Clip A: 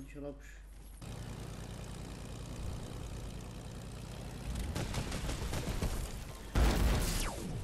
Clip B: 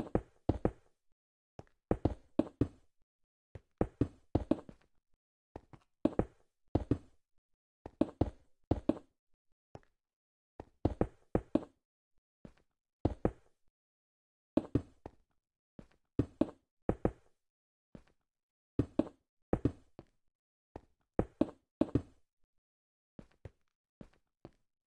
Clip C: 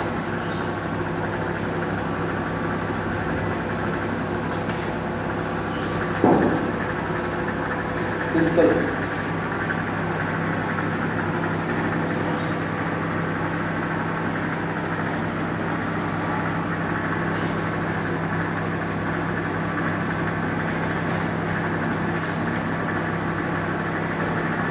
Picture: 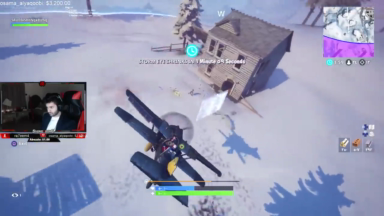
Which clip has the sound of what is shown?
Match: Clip A